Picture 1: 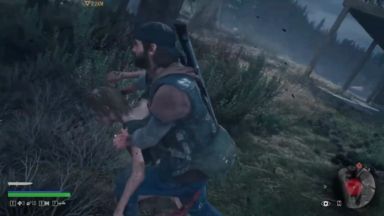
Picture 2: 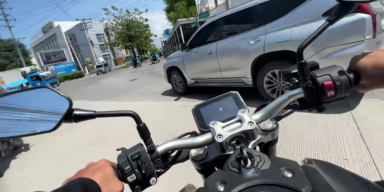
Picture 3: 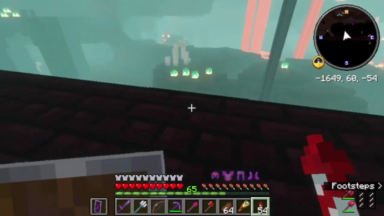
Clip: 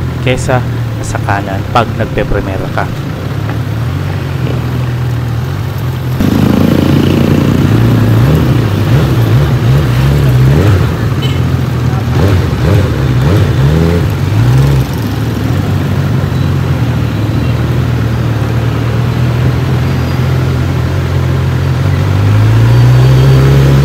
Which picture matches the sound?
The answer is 2